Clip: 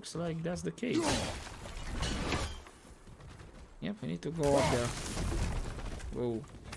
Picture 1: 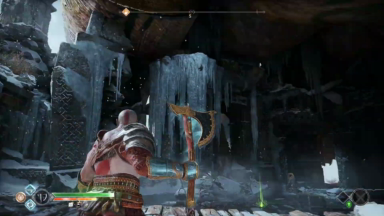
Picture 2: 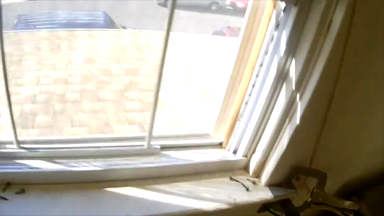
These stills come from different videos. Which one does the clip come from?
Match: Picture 1